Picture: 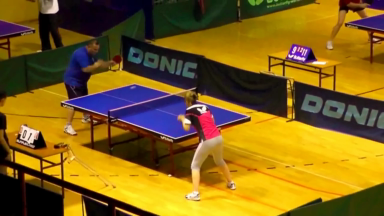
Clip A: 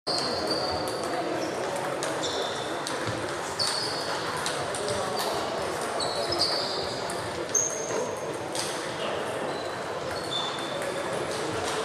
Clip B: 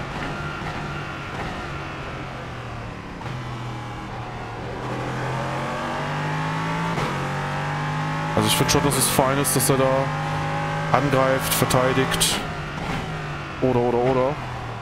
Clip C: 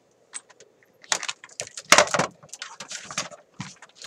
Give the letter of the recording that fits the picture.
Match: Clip A